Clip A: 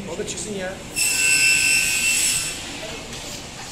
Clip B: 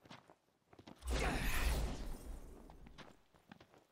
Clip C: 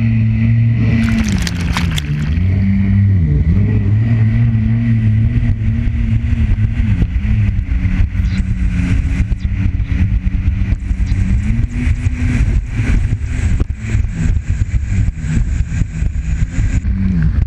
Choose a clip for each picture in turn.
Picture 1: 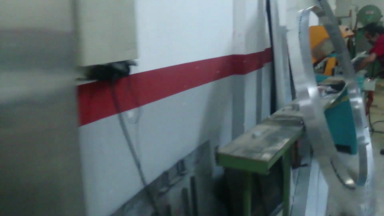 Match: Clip A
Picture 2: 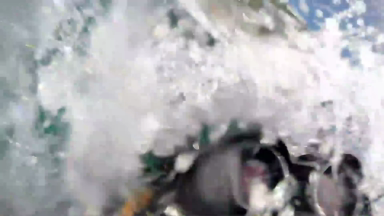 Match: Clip C